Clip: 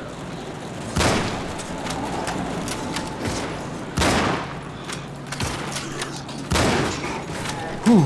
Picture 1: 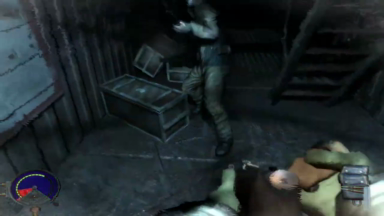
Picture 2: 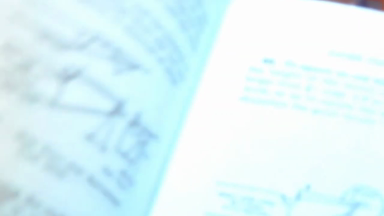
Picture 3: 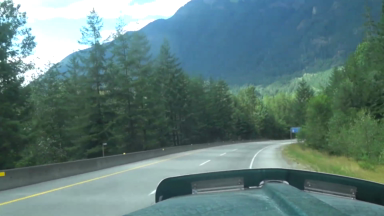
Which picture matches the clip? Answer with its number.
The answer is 1